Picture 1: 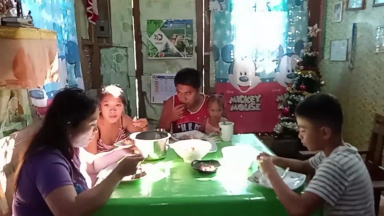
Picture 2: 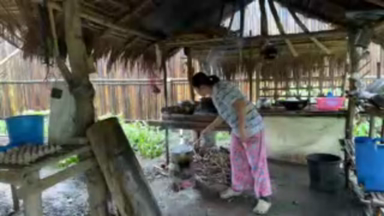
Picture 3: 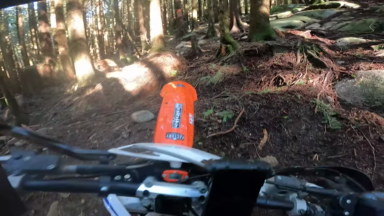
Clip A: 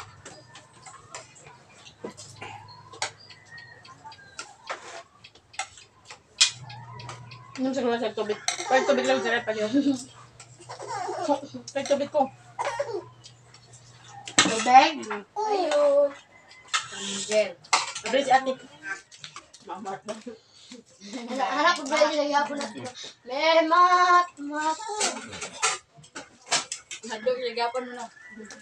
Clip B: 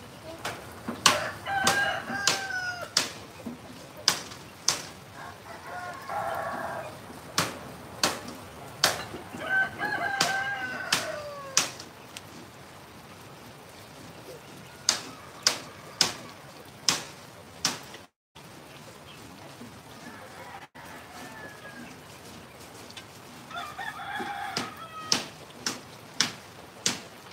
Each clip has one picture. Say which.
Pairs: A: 1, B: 2